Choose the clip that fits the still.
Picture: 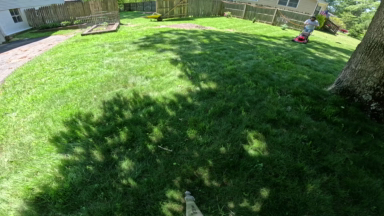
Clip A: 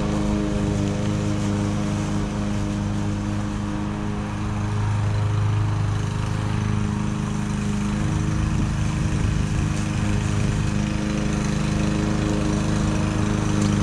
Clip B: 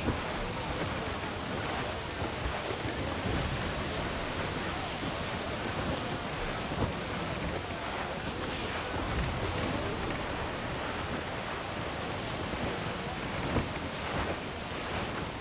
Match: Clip A